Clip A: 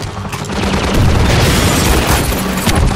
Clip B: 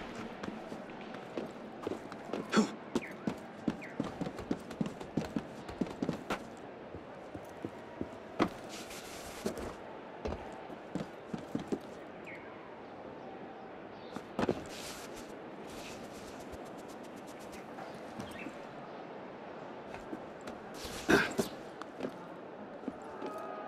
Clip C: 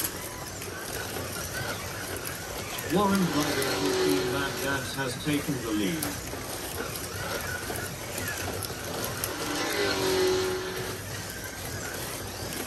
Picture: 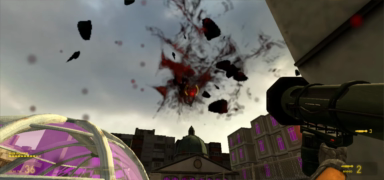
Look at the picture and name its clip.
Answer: A